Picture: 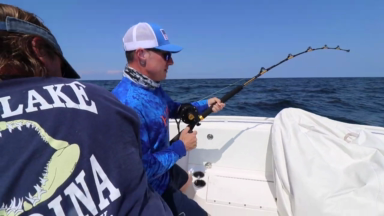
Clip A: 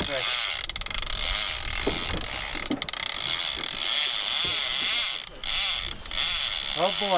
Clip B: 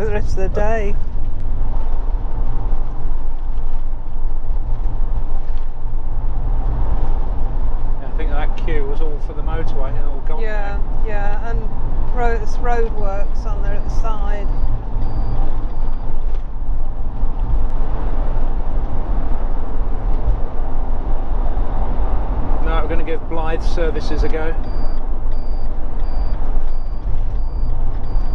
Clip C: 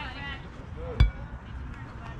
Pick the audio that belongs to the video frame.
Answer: A